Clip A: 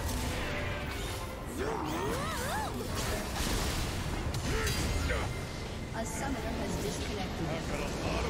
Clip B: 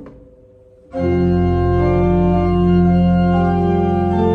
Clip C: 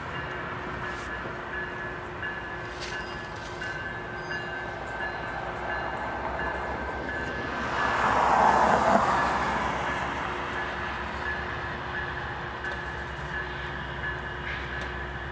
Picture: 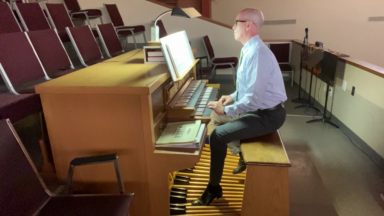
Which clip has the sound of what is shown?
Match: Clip B